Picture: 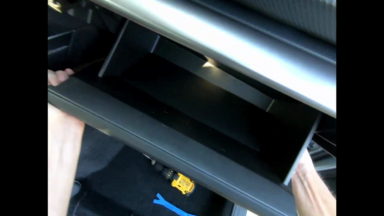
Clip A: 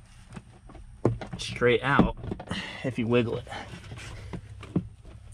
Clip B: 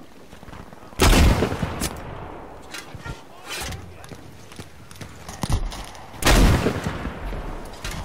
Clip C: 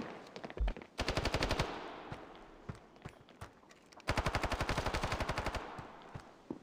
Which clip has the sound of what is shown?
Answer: A